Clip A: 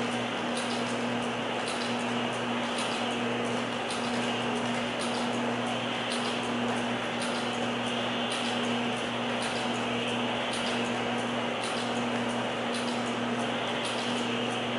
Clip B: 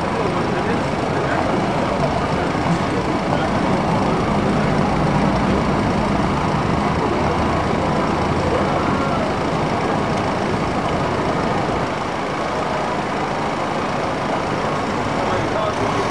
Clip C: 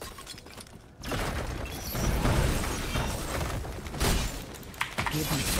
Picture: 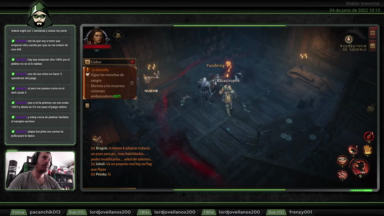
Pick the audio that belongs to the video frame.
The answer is C